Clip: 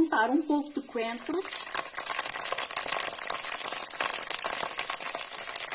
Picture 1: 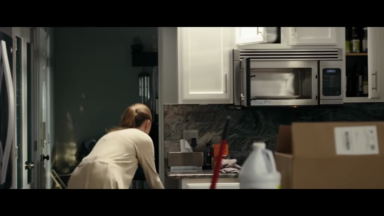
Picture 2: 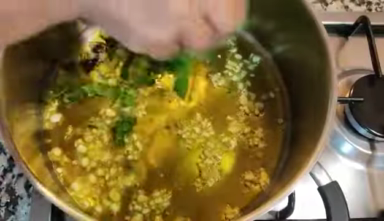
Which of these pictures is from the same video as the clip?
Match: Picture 2